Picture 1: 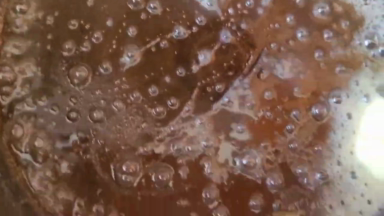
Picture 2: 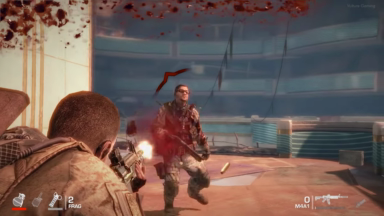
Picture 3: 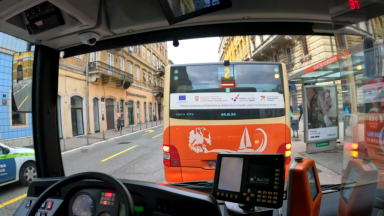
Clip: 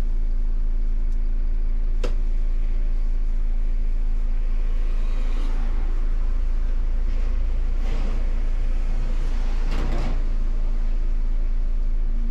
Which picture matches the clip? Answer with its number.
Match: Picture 3